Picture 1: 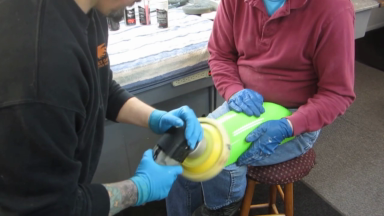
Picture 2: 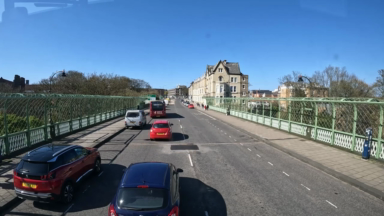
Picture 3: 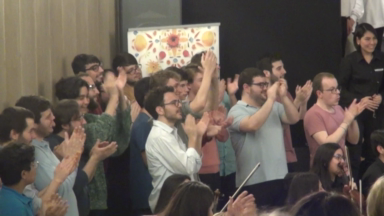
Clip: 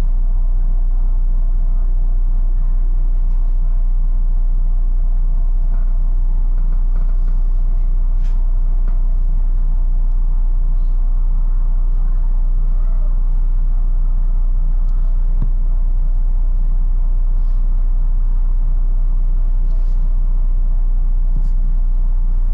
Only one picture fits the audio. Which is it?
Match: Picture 2